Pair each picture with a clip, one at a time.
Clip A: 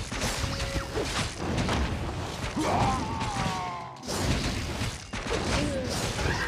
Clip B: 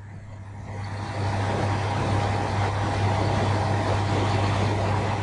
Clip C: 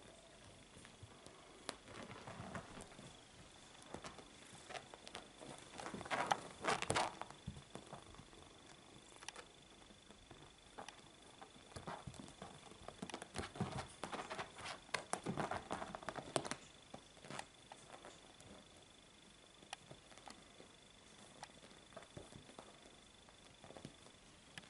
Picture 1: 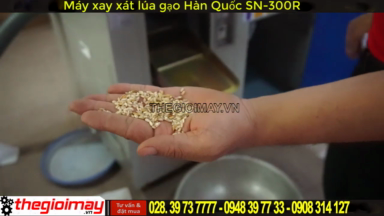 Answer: B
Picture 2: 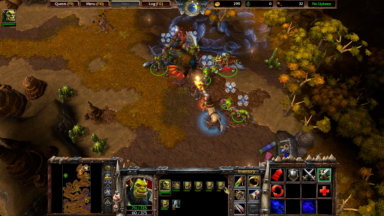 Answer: A